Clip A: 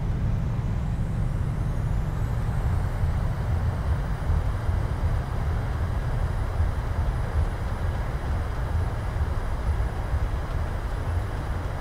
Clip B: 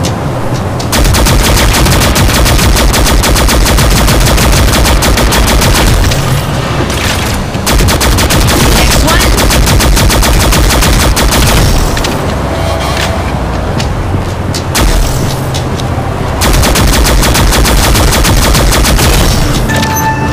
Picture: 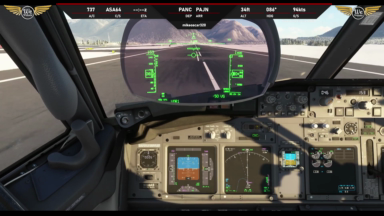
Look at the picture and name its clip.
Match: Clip A